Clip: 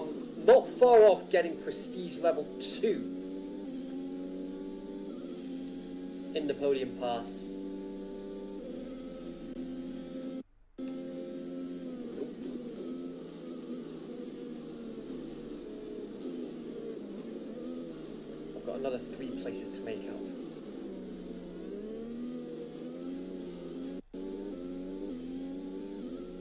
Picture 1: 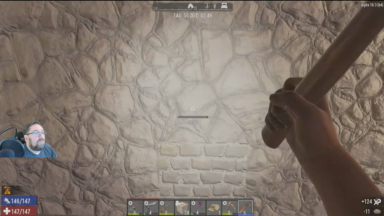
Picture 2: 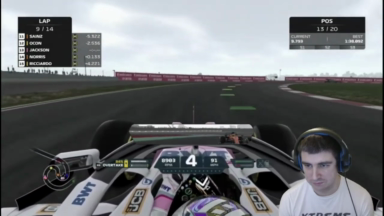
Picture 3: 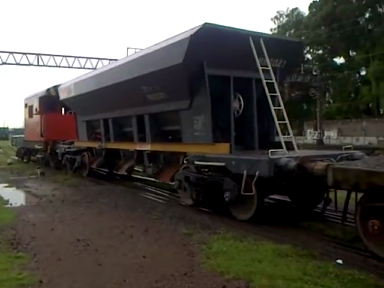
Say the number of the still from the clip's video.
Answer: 2